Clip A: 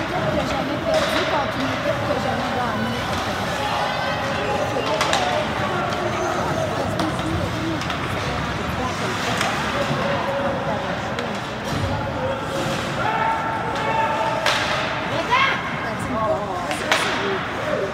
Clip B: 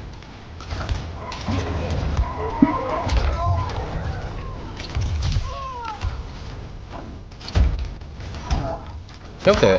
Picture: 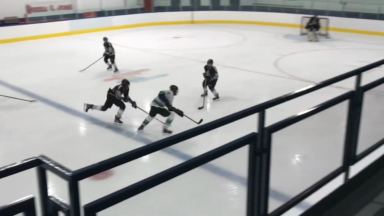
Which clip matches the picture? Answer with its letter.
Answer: A